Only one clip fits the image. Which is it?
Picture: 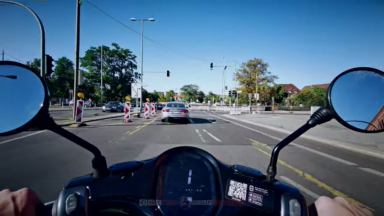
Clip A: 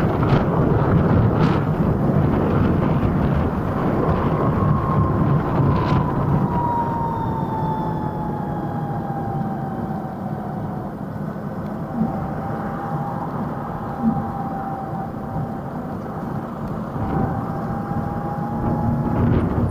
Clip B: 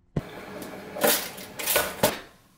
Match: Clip A